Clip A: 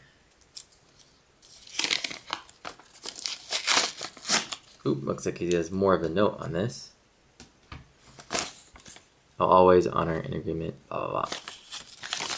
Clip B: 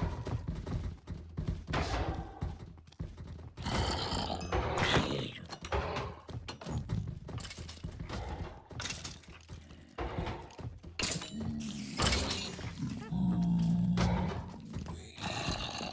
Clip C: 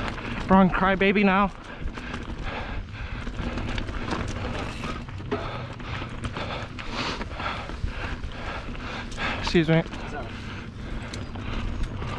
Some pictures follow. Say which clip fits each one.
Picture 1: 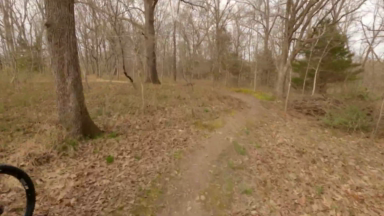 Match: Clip C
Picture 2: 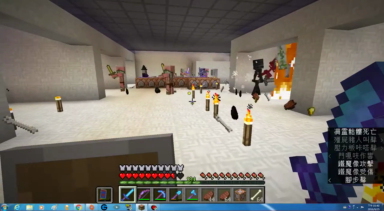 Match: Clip B